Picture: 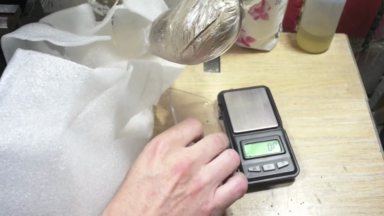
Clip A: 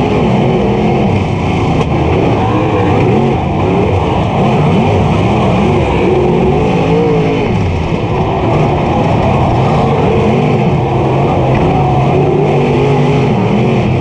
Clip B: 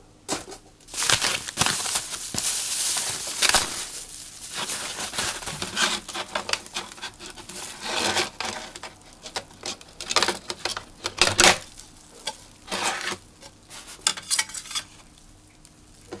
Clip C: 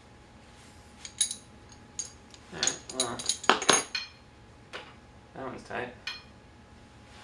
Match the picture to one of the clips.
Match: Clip B